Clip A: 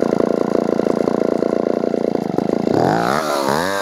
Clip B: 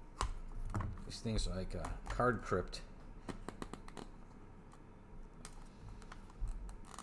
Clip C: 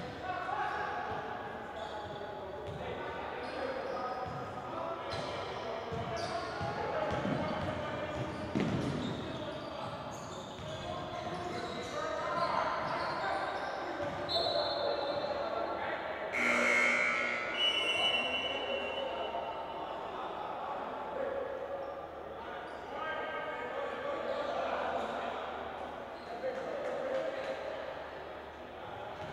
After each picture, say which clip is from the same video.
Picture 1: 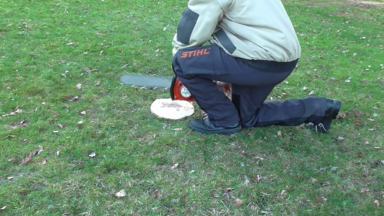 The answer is A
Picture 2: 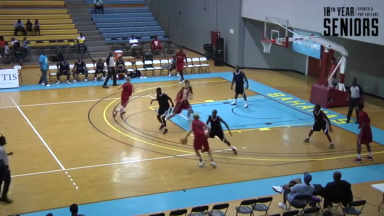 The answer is C